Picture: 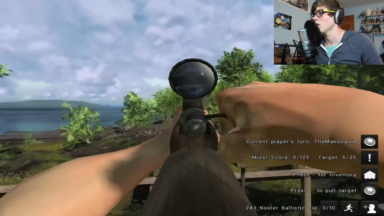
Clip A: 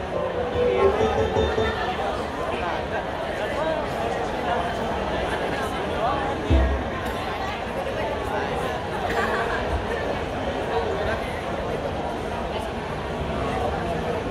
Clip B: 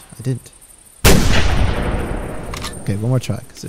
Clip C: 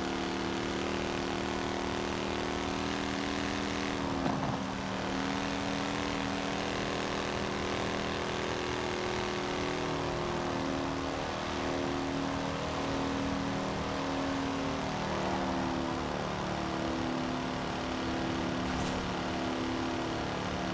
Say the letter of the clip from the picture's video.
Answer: B